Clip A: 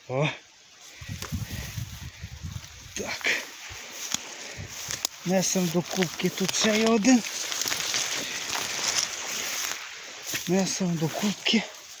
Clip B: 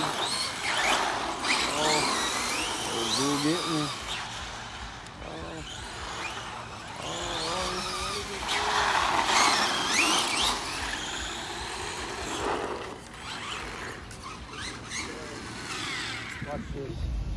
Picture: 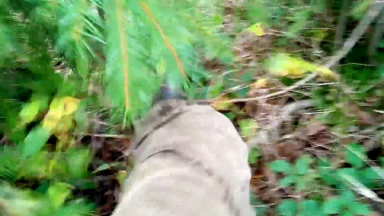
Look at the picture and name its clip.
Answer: A